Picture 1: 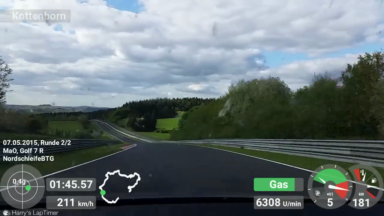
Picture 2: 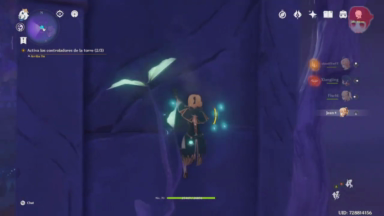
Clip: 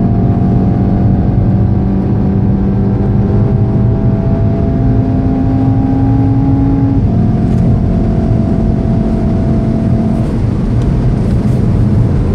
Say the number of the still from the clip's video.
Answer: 1